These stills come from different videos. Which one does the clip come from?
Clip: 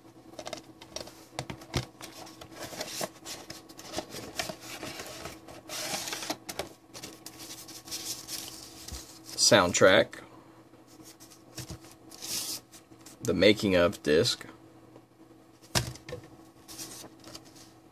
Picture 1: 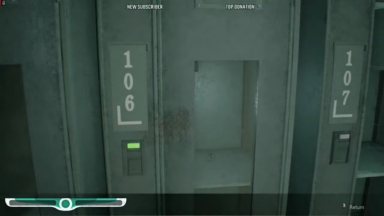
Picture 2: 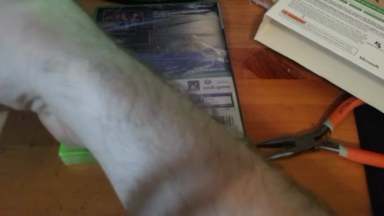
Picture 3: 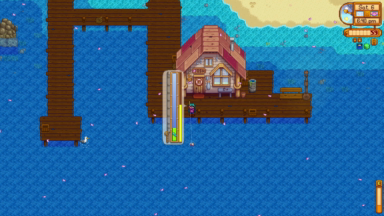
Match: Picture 2